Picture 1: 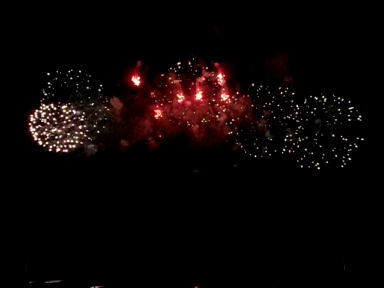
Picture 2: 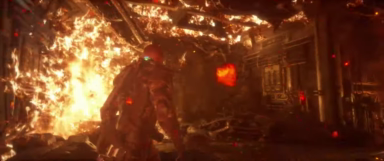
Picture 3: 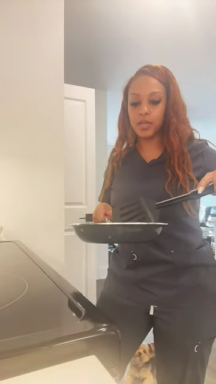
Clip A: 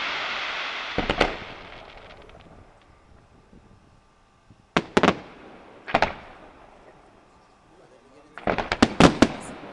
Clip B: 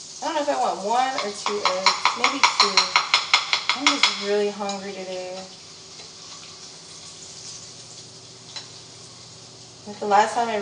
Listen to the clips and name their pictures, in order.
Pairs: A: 1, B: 3